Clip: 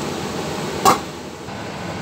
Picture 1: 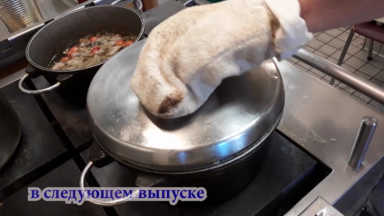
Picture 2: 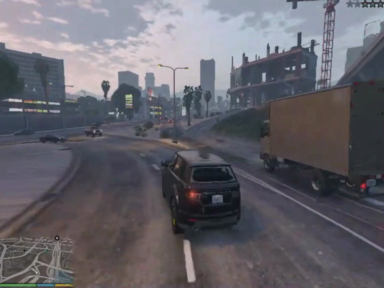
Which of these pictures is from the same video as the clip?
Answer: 1